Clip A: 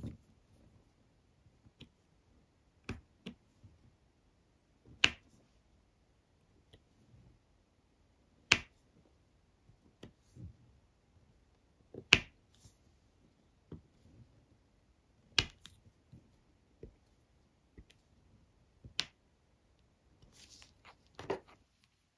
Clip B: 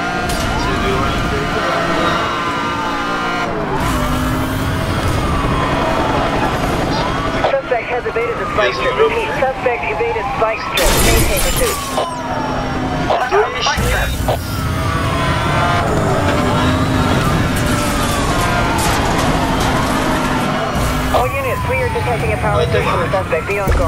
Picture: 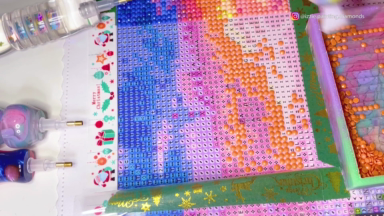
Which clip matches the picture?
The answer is A